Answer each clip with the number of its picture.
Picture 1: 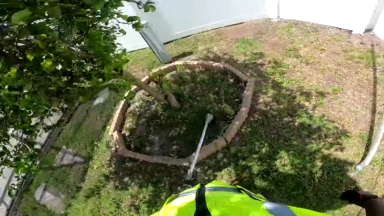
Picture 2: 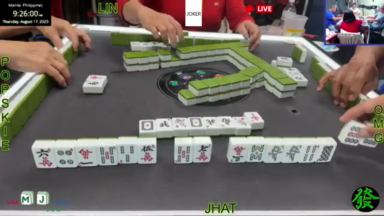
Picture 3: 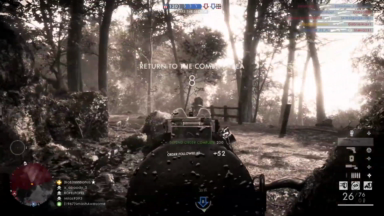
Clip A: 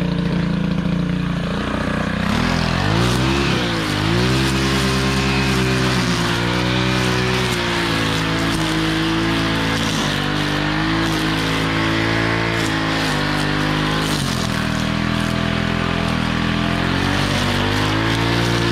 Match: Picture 1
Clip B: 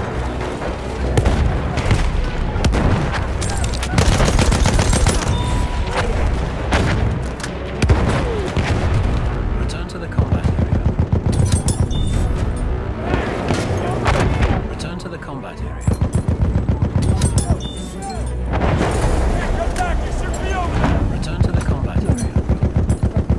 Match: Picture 3